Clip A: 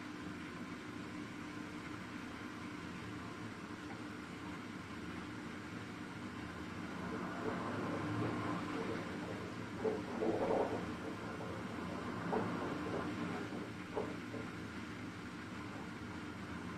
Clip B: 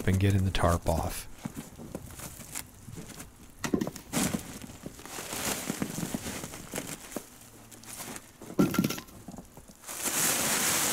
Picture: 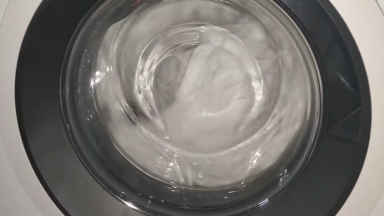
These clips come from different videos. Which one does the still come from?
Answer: A